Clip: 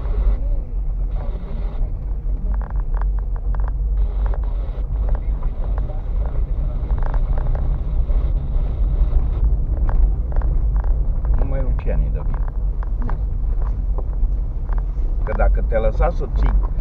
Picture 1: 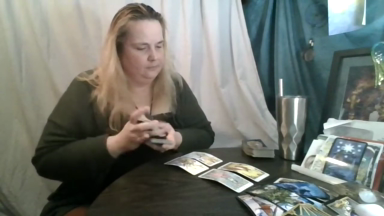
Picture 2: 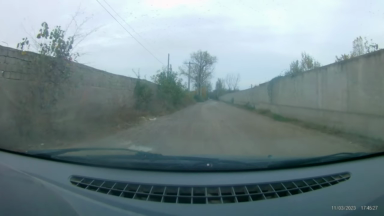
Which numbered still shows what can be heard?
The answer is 2